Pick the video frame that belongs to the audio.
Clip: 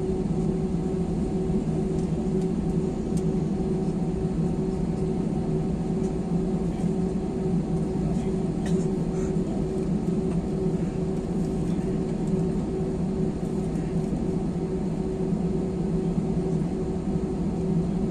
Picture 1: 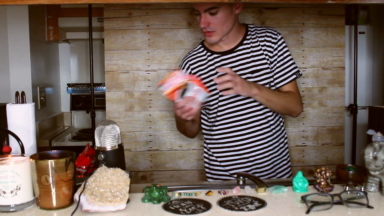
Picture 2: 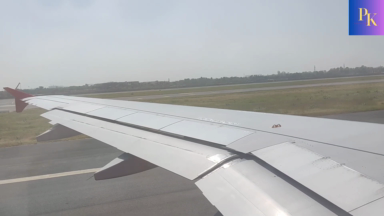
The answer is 2